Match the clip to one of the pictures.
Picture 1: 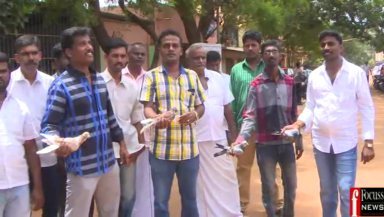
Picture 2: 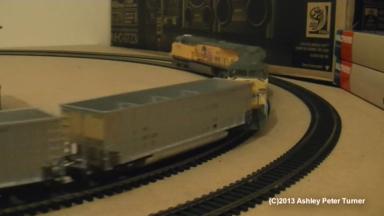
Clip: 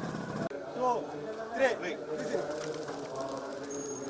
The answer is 1